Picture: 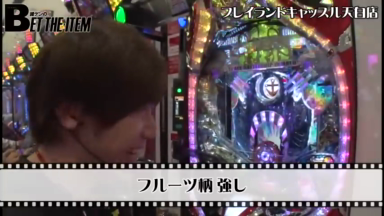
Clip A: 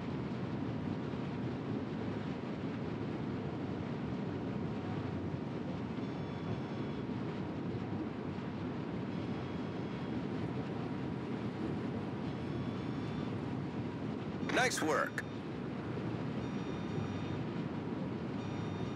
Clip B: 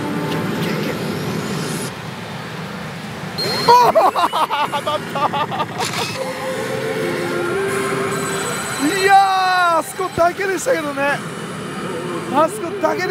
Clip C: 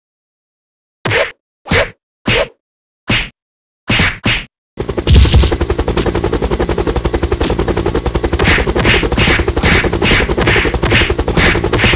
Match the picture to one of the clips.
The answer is B